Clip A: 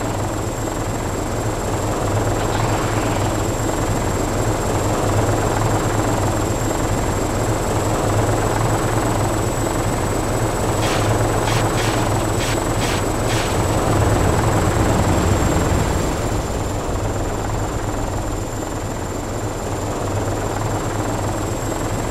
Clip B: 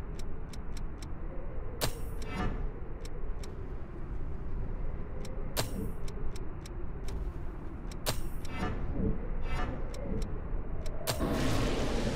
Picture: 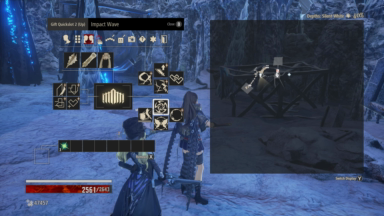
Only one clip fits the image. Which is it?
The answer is B